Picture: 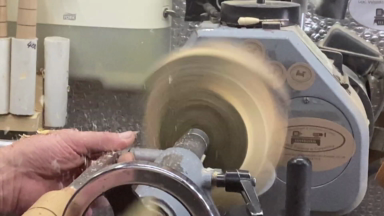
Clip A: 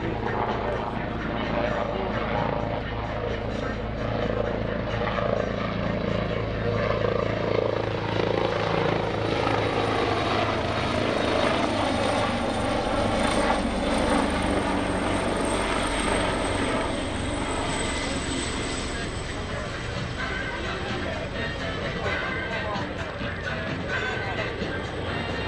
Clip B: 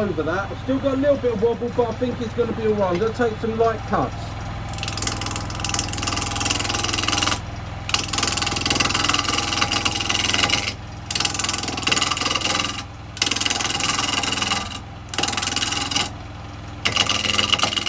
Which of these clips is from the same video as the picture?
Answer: B